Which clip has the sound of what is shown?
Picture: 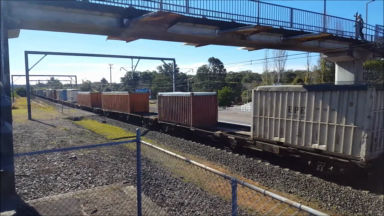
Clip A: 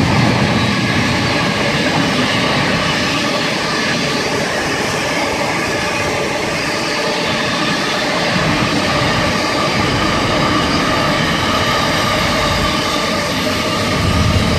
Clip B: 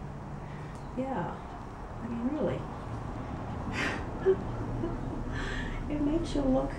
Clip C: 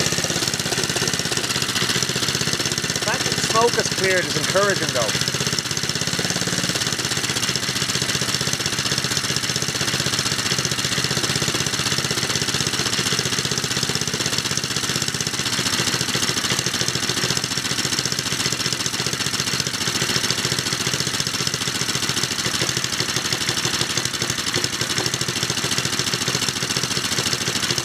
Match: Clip A